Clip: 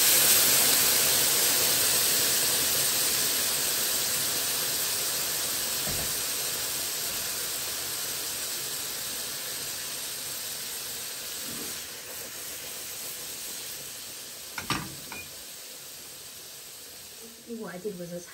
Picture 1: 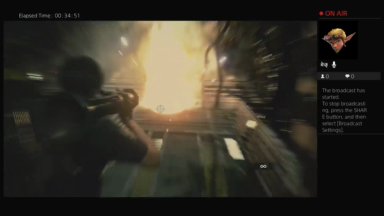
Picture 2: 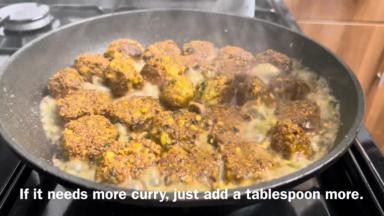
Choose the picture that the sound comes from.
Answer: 2